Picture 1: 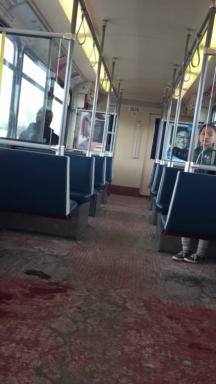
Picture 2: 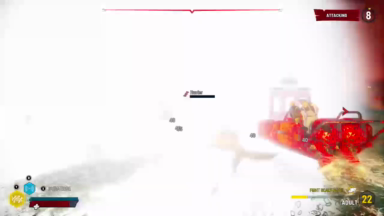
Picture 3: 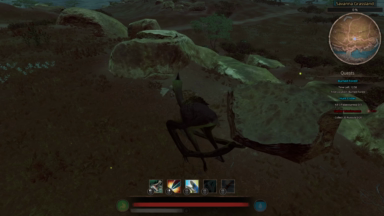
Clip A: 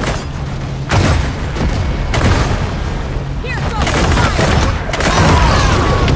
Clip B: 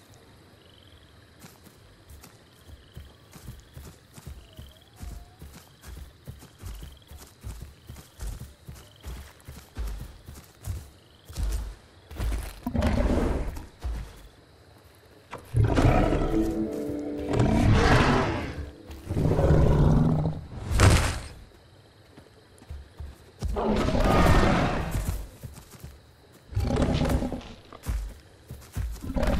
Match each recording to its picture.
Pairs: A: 2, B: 3